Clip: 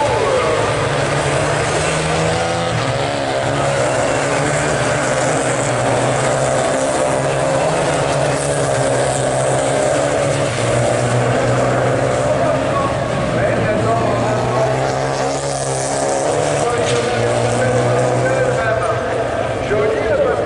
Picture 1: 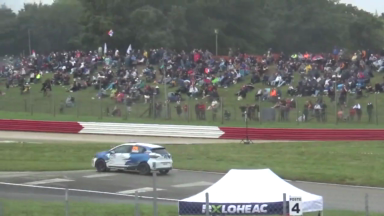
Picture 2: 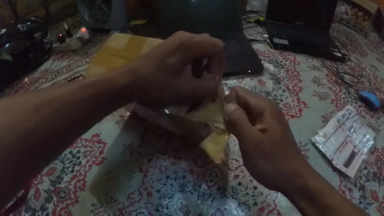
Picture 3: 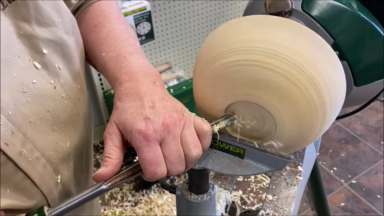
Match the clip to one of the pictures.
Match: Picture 1